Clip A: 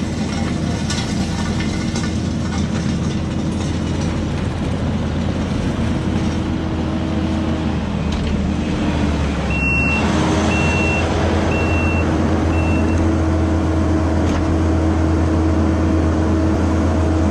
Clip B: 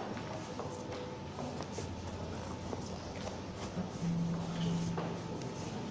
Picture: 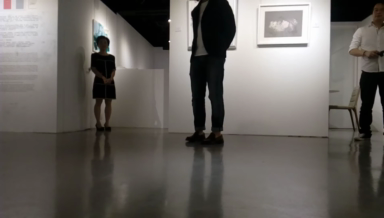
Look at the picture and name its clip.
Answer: B